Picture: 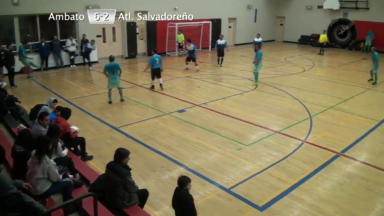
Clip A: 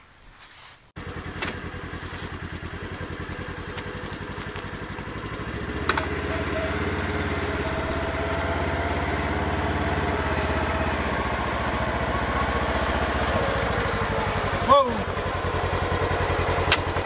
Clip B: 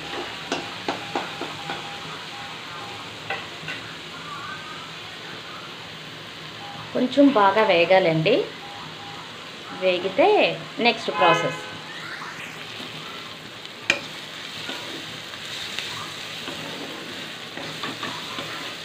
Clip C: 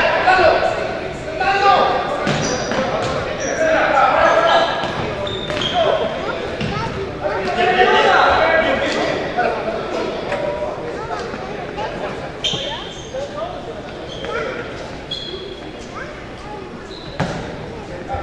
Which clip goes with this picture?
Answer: C